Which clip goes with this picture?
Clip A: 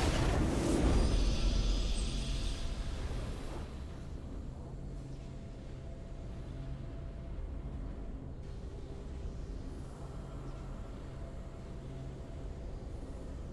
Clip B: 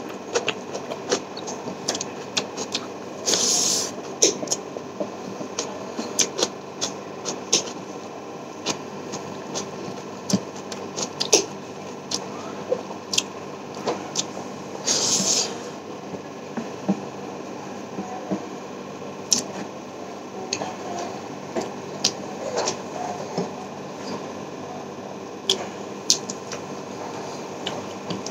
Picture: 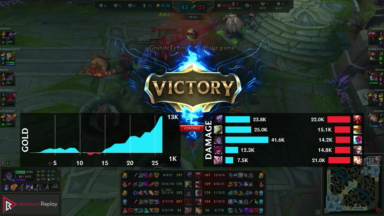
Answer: A